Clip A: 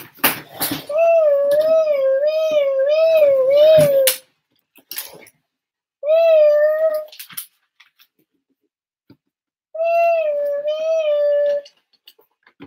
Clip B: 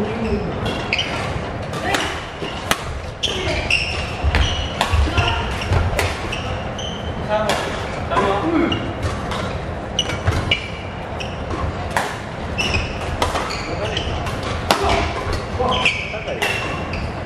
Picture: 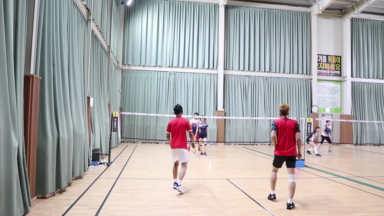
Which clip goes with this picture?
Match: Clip B